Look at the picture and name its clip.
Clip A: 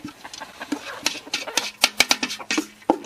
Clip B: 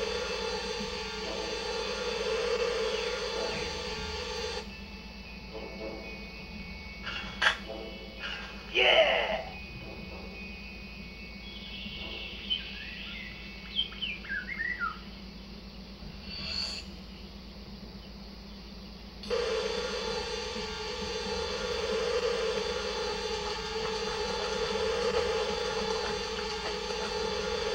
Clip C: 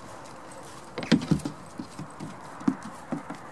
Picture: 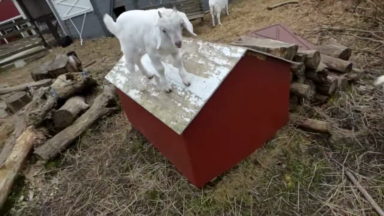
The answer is C